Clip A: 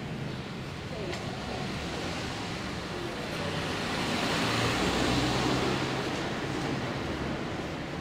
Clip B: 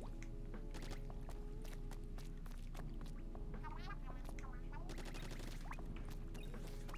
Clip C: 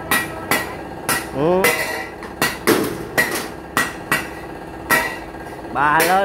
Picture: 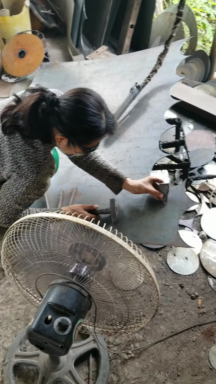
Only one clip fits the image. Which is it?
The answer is C